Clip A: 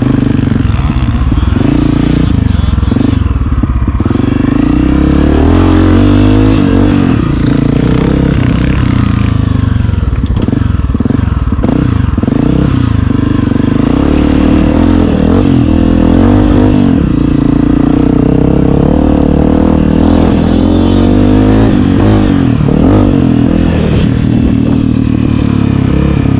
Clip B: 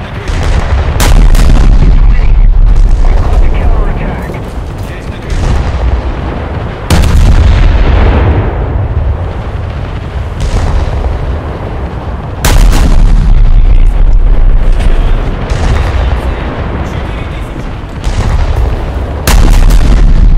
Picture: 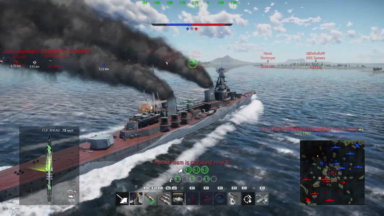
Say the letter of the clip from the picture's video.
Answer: B